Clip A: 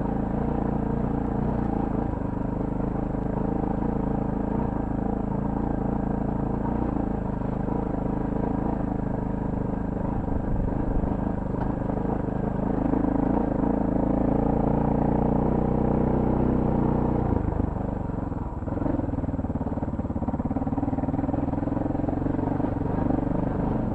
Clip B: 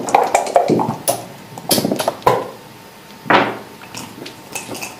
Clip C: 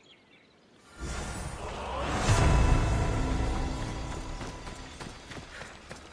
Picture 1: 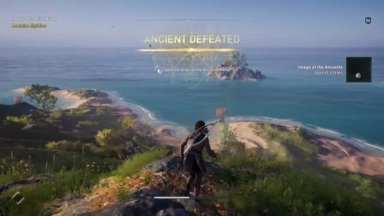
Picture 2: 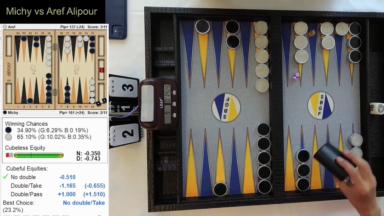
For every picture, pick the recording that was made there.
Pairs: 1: C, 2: B